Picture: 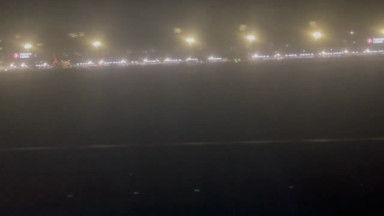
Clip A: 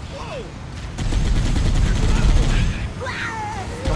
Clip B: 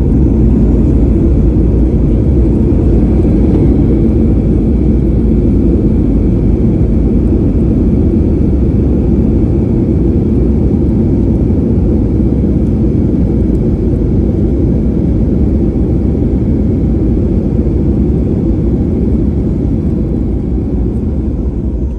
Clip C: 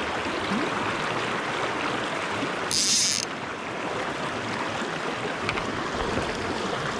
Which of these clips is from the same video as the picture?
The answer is B